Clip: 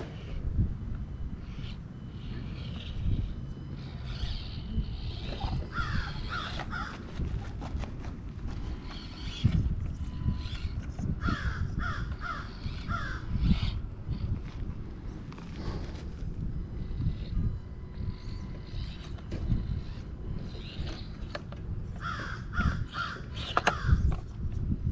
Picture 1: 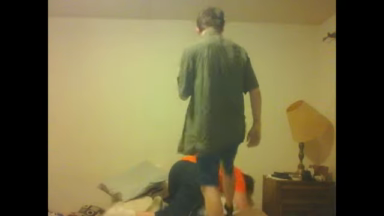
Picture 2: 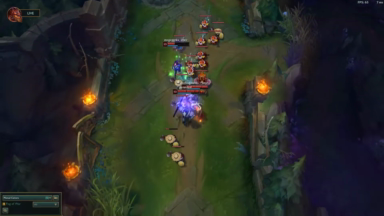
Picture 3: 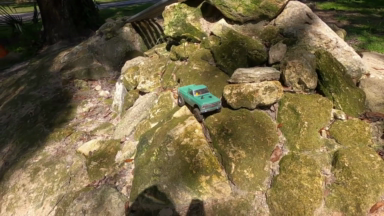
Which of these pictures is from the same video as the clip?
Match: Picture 3